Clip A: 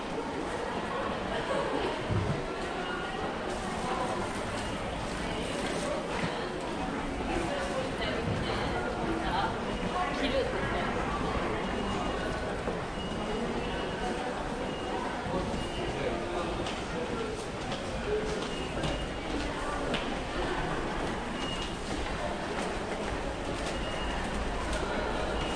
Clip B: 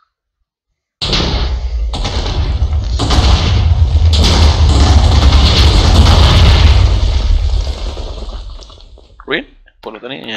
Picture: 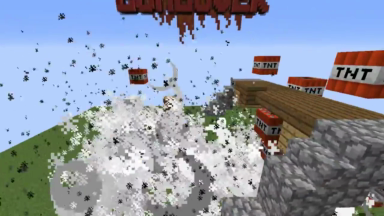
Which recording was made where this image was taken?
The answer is B